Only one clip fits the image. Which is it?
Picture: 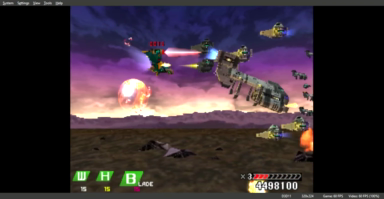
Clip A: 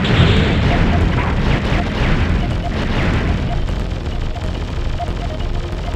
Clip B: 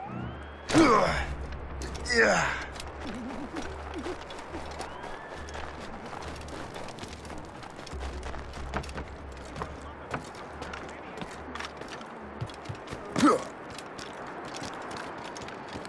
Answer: A